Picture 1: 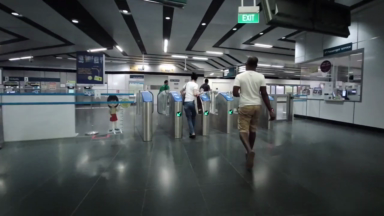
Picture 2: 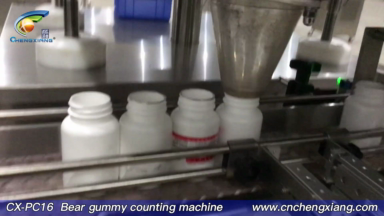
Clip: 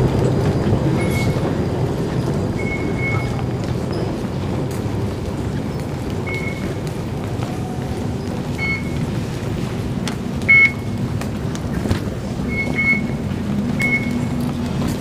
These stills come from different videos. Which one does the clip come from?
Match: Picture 1